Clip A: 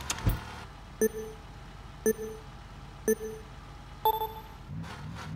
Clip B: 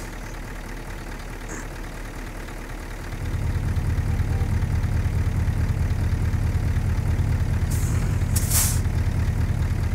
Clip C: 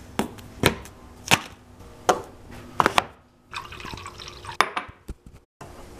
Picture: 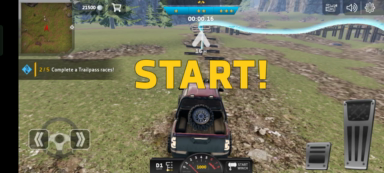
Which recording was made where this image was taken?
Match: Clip A